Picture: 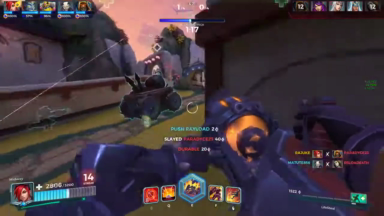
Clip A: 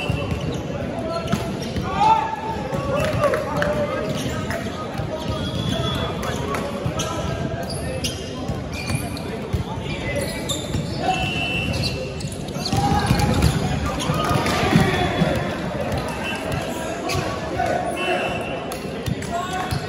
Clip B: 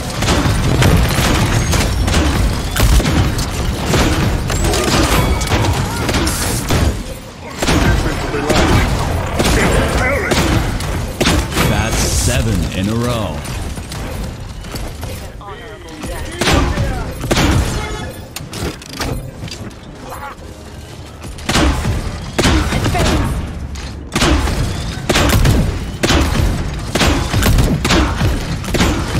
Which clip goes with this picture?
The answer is B